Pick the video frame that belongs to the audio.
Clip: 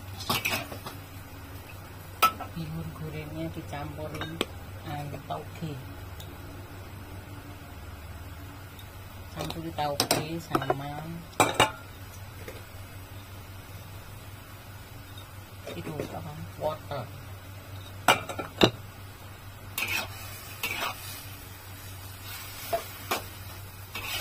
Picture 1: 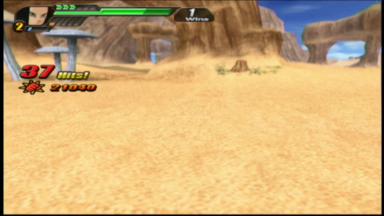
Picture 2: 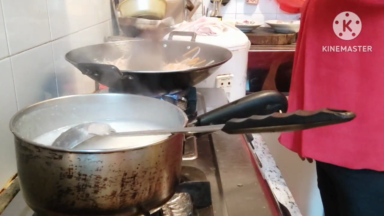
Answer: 2